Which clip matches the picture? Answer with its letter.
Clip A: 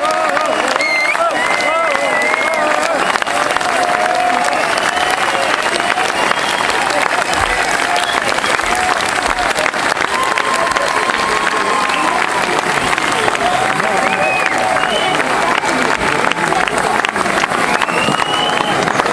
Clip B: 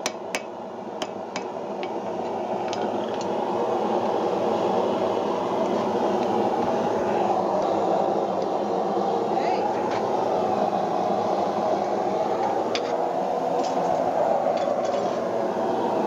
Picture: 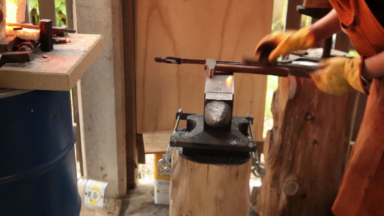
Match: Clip B